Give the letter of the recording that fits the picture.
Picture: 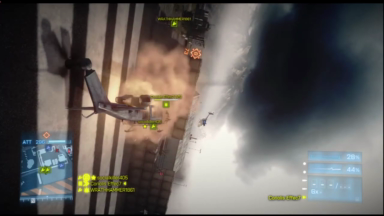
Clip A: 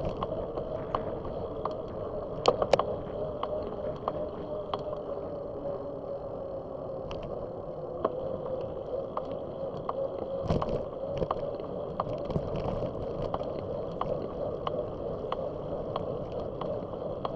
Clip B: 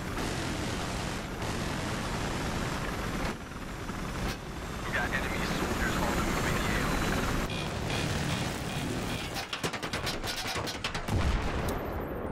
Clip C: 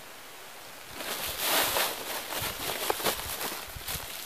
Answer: B